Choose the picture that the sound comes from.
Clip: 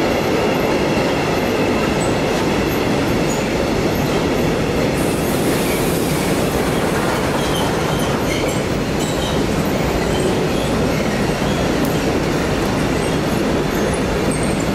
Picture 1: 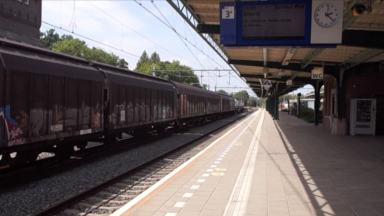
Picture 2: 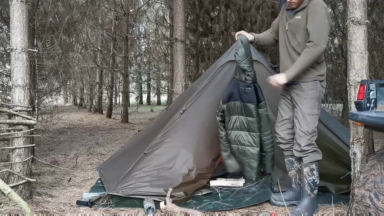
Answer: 1